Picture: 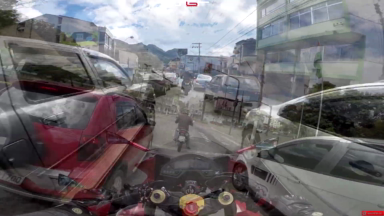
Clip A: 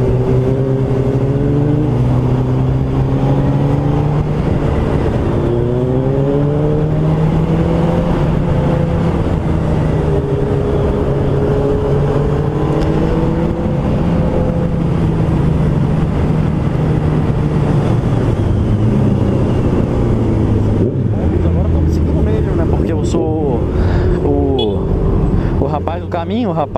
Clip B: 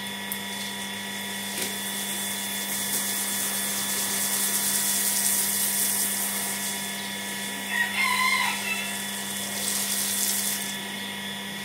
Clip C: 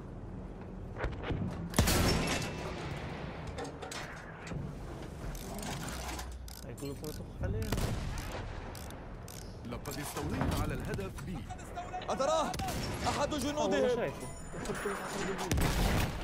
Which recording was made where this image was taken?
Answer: A